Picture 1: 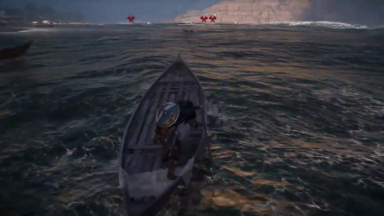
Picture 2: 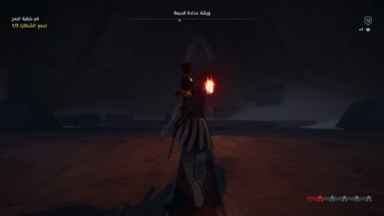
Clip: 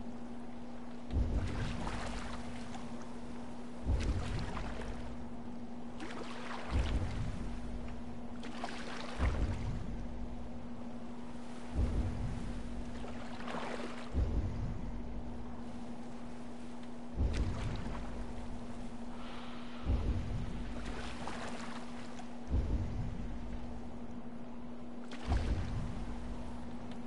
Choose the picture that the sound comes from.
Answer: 1